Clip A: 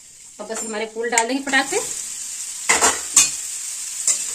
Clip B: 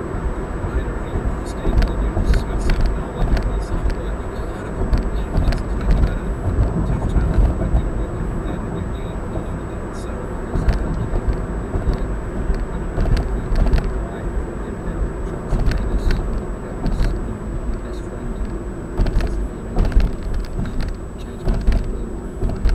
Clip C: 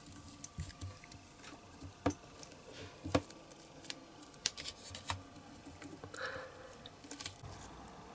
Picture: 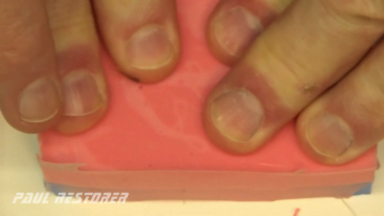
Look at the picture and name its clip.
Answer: C